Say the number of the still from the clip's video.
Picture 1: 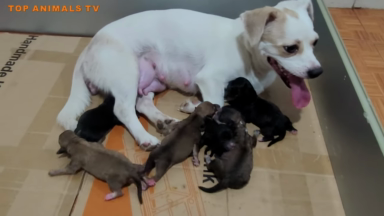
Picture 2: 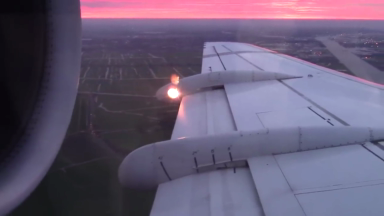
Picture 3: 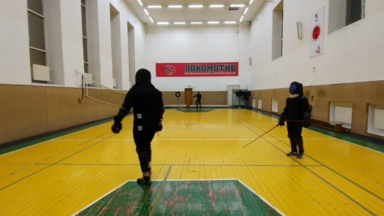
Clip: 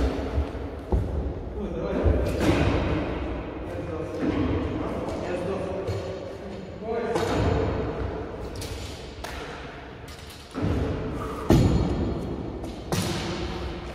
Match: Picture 3